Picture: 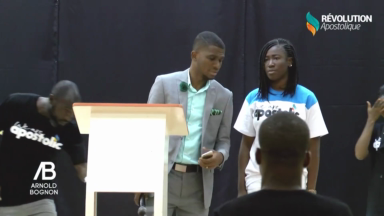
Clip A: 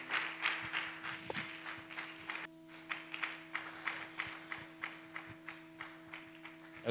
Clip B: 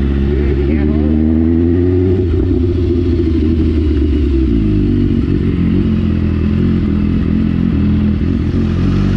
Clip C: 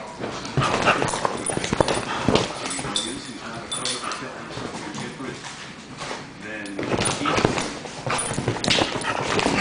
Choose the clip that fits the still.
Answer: A